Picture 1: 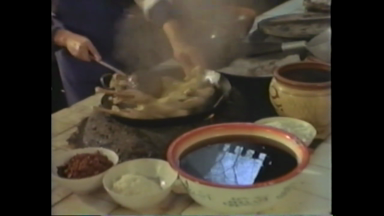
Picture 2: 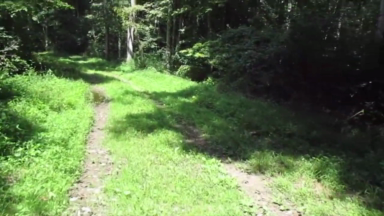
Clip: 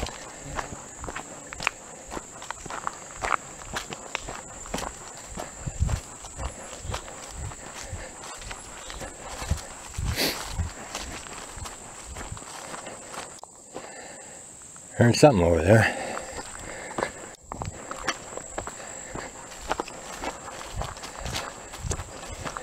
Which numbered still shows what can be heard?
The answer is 2